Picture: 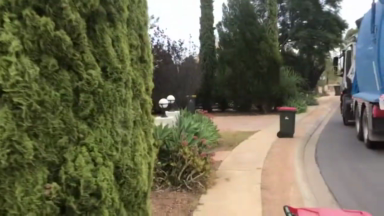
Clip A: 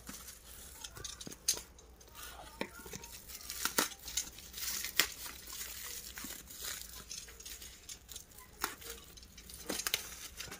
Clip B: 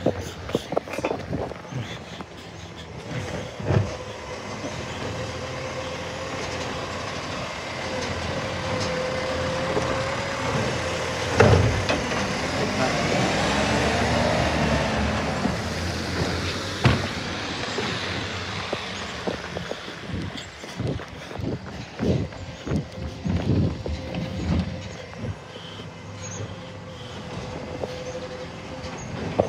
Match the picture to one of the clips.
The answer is B